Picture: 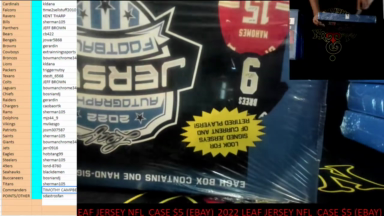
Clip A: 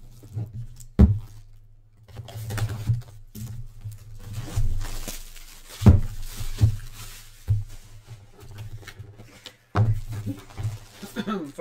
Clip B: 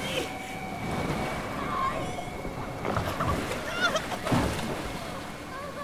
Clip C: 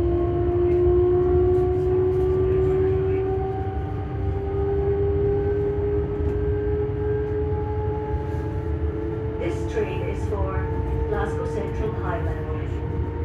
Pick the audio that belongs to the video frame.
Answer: A